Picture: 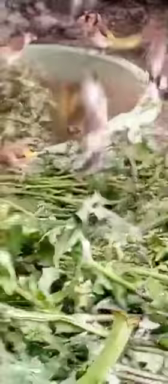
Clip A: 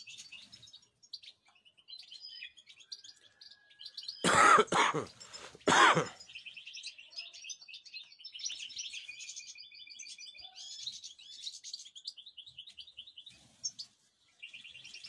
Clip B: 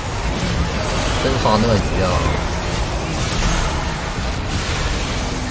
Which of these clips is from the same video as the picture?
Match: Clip A